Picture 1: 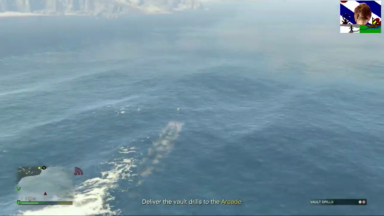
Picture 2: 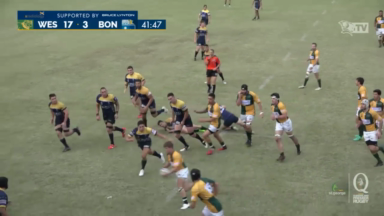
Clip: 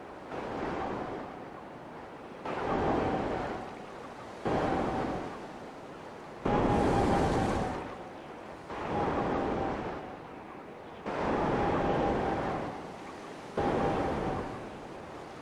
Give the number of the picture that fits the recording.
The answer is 1